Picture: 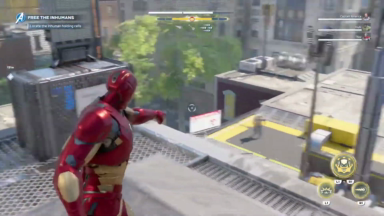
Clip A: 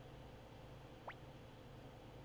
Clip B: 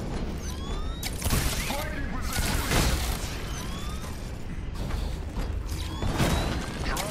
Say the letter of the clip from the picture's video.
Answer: B